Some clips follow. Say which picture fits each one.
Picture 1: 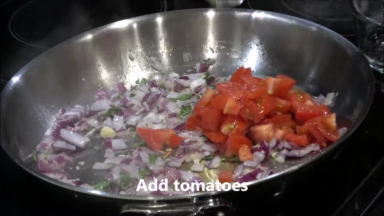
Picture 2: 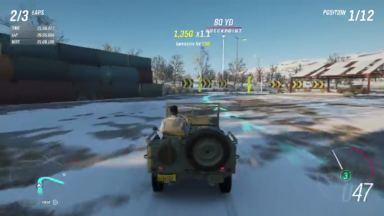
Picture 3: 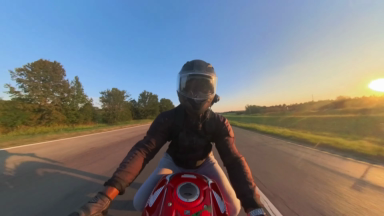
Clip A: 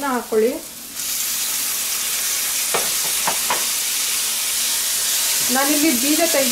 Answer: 1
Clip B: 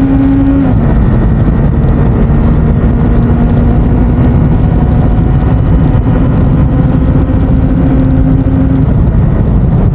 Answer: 3